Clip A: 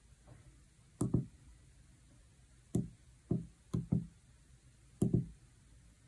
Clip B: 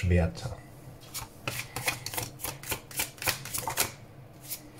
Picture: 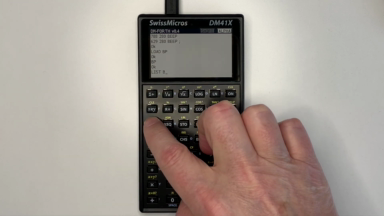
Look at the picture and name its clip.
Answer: A